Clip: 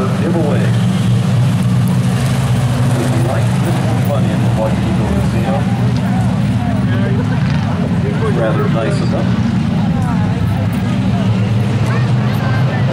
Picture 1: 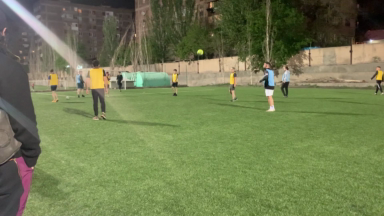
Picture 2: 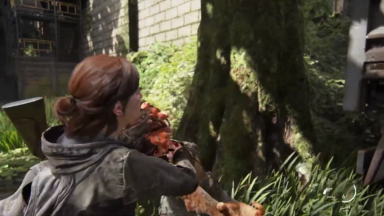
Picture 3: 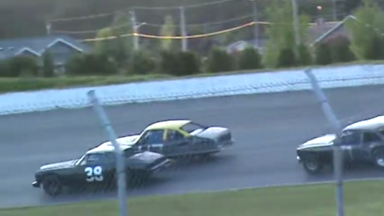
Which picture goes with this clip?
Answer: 3